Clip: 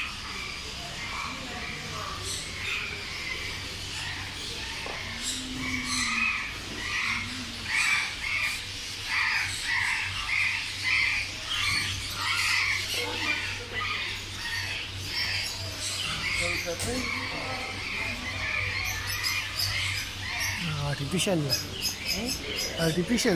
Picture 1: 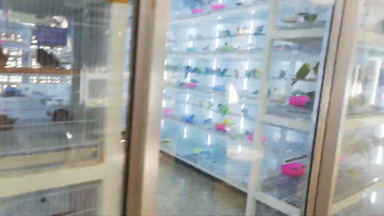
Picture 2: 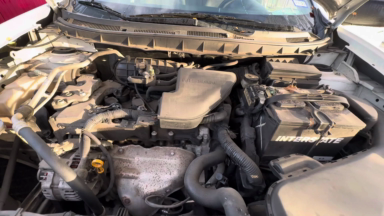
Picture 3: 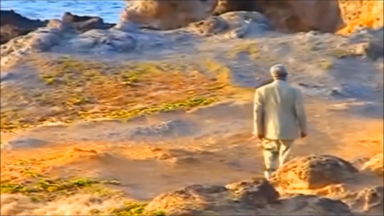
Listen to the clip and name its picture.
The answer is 1